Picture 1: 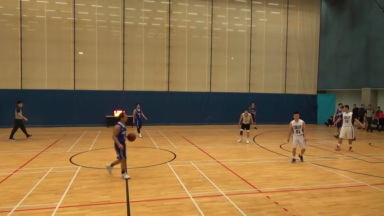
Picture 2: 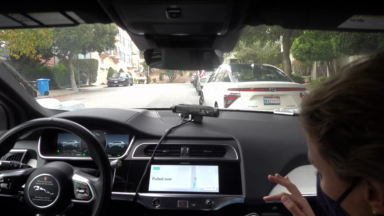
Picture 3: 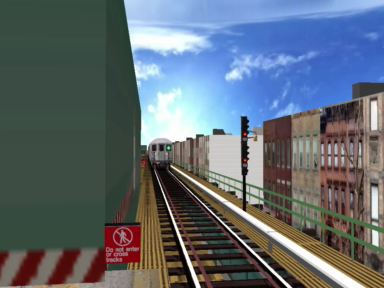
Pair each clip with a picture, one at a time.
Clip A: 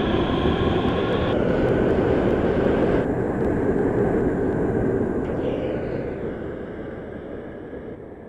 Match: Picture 3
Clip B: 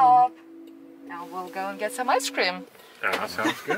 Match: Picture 2